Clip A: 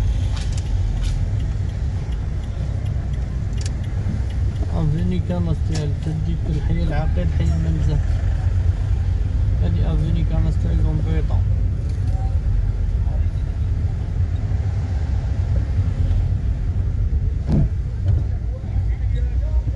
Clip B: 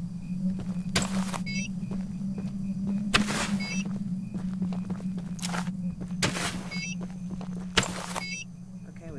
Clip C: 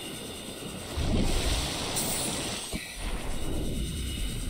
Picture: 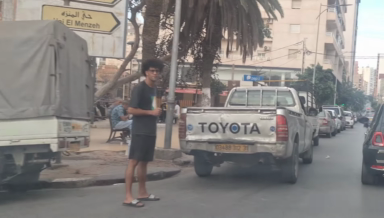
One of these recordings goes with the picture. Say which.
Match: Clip A